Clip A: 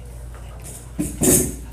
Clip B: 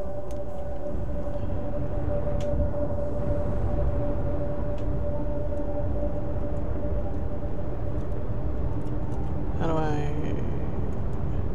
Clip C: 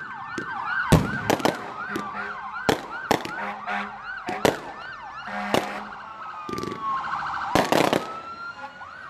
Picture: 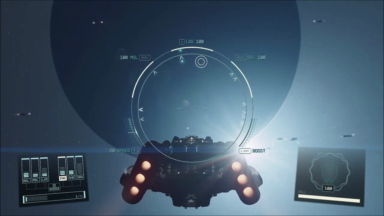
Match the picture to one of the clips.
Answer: B